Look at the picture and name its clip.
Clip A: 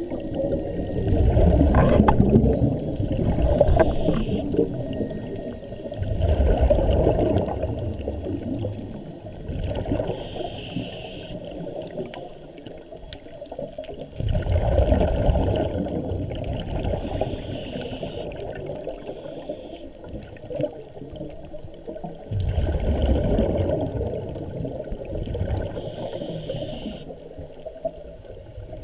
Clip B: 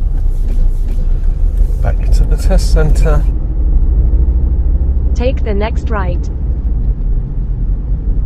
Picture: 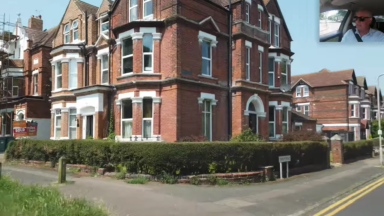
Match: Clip B